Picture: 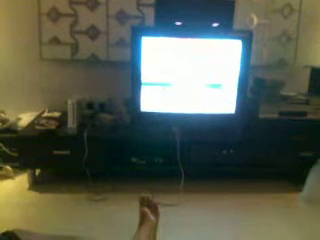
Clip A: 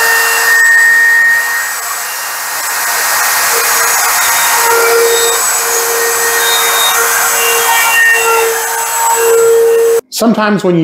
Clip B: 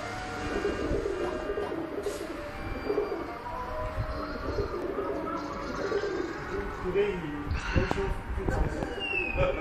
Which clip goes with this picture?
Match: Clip B